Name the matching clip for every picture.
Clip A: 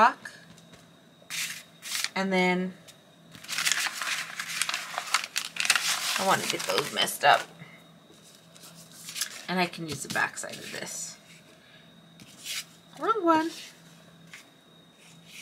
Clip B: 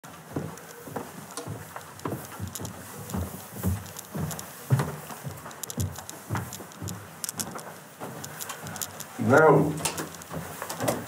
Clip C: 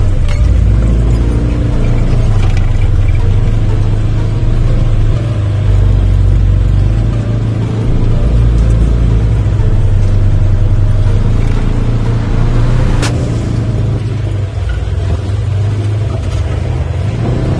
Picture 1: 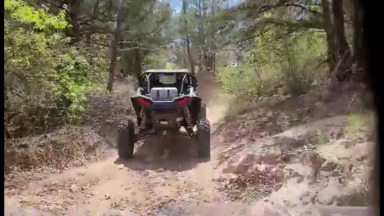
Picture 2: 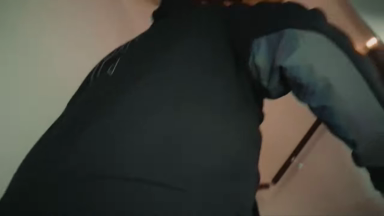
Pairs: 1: C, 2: B